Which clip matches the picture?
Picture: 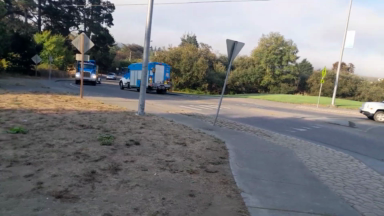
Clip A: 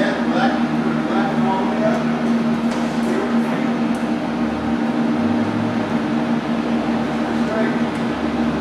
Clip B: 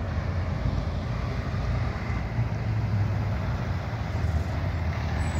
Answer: B